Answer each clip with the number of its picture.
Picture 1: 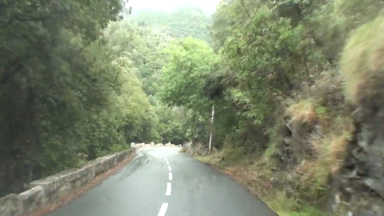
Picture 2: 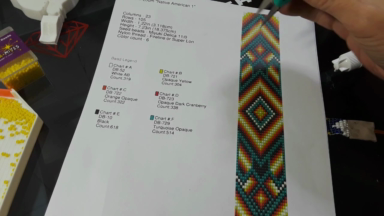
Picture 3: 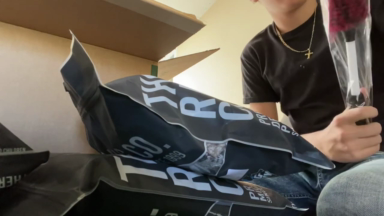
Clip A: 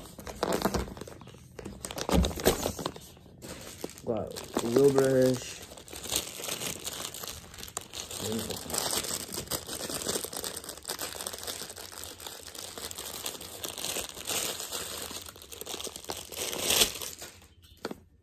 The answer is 3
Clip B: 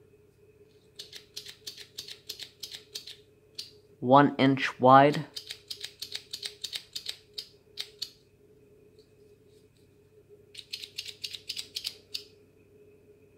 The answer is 2